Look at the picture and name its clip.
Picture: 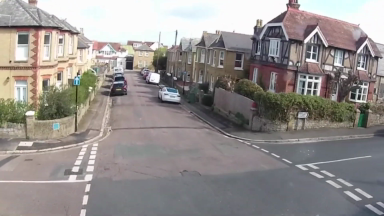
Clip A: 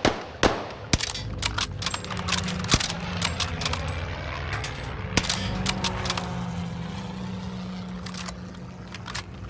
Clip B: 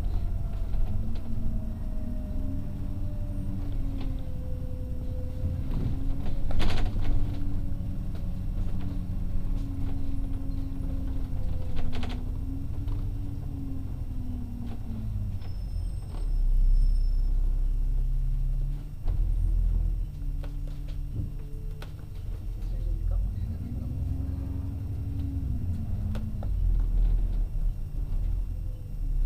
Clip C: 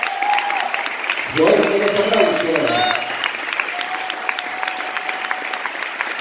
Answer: B